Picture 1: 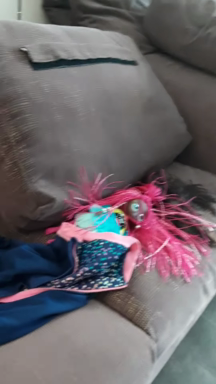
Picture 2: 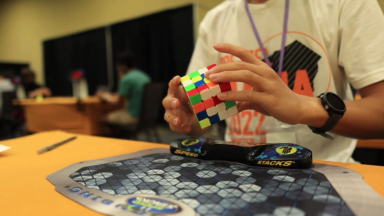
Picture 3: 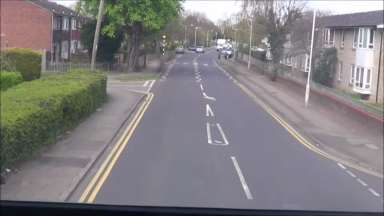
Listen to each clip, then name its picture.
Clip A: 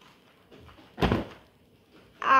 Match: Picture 1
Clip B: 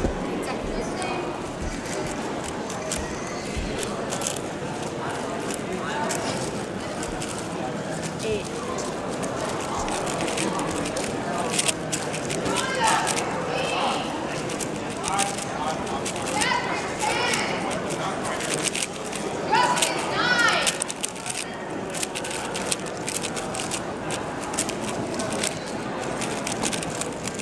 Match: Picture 2